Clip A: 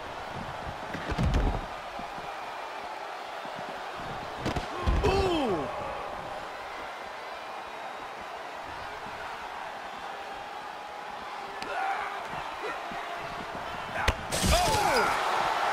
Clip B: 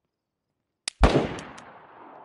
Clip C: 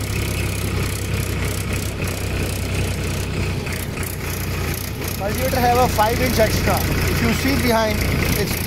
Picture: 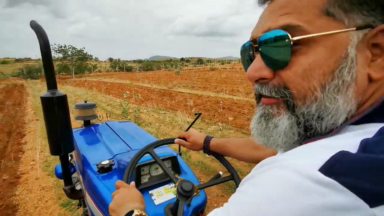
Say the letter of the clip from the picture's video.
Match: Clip C